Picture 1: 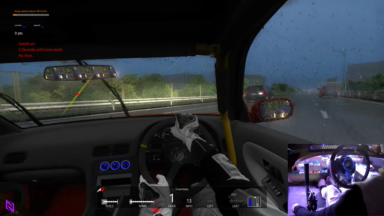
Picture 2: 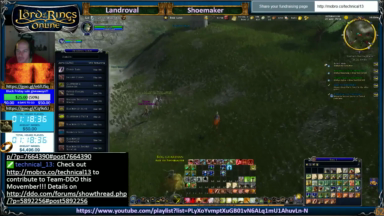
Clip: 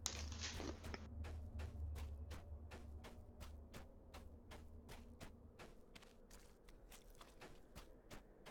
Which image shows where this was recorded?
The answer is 2